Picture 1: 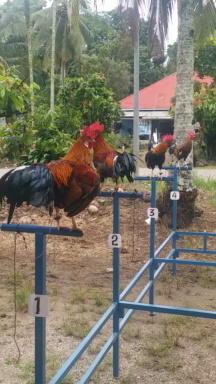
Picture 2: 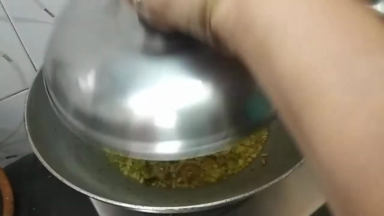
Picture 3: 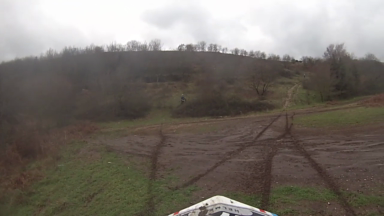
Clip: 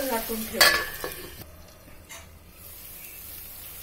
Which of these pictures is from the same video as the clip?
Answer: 2